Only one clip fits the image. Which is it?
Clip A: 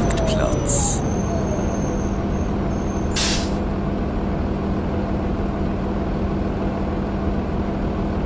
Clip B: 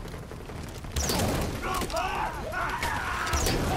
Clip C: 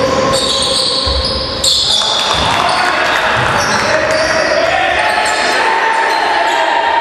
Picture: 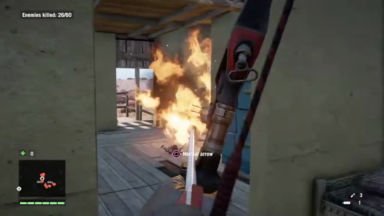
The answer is B